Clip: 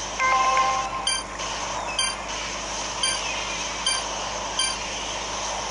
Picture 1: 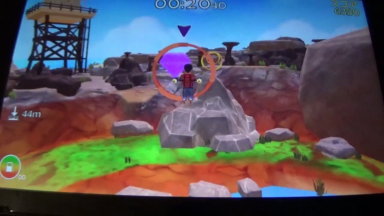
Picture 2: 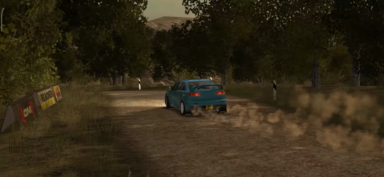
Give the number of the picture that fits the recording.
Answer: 1